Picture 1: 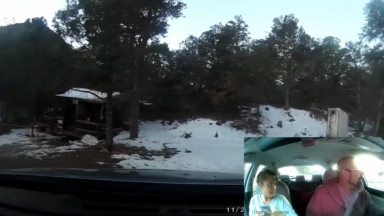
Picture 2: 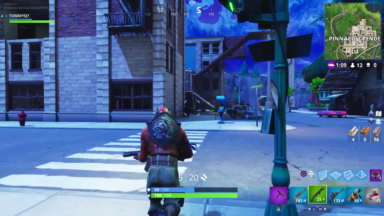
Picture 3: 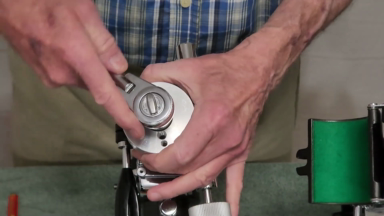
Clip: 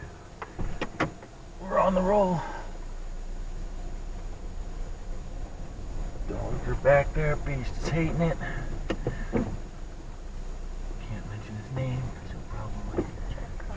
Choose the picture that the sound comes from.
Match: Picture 1